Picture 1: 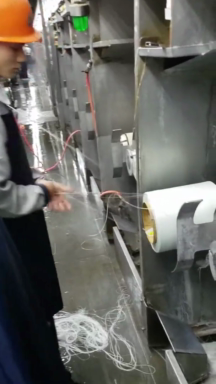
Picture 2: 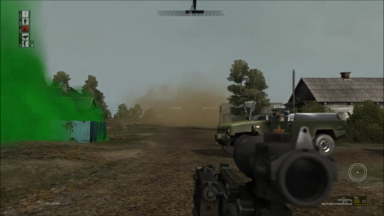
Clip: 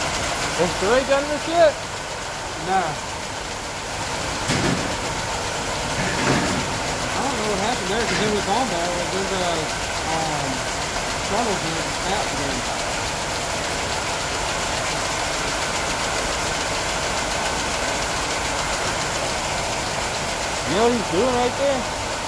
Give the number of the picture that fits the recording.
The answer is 1